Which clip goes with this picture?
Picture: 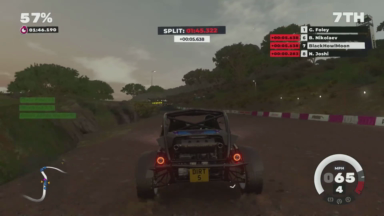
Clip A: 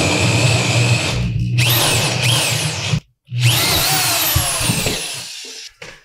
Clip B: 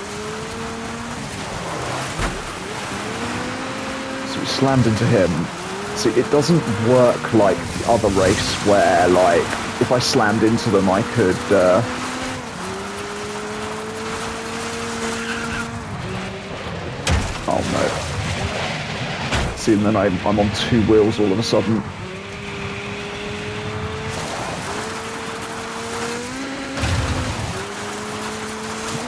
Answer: B